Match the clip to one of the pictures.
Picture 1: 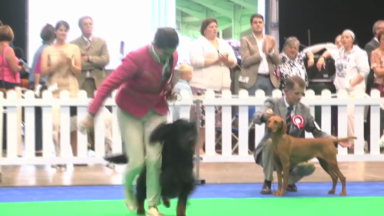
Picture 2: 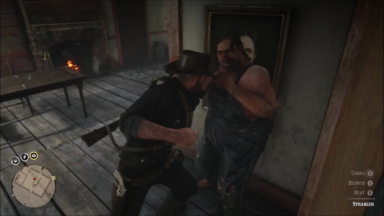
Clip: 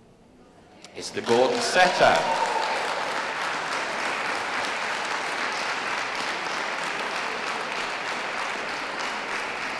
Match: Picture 1